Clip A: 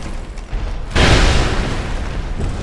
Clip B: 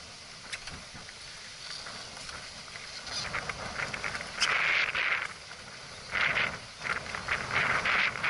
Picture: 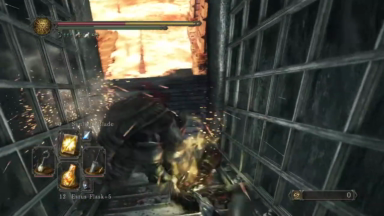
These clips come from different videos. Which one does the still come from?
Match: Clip A